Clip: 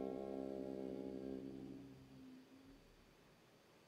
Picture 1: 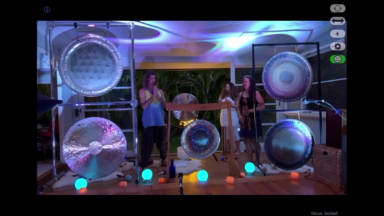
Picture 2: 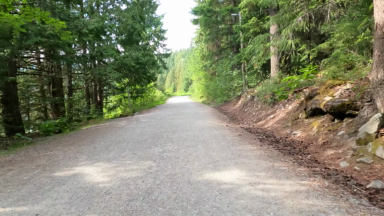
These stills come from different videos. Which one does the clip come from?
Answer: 1